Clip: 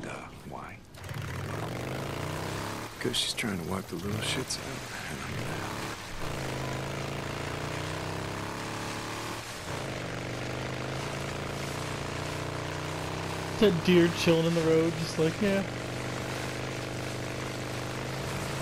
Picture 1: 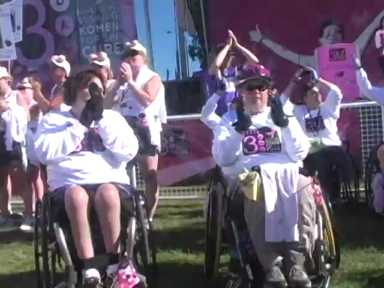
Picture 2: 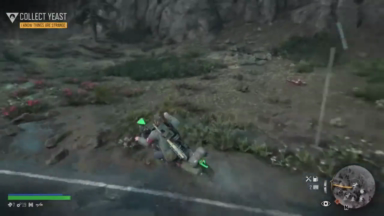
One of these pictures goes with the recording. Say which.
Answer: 2